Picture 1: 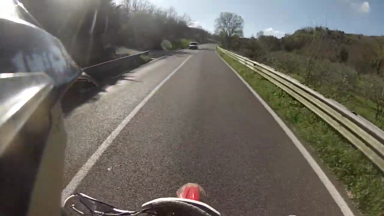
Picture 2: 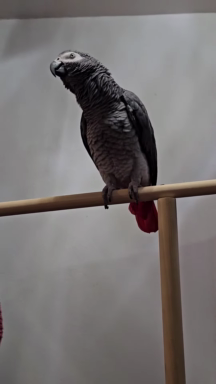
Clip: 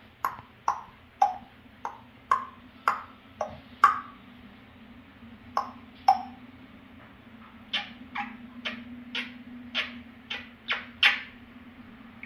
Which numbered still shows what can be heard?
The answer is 2